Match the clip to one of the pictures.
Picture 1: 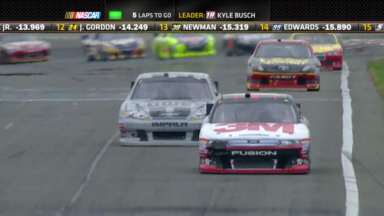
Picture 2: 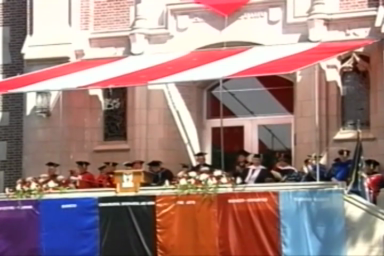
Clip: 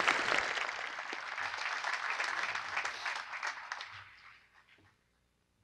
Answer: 2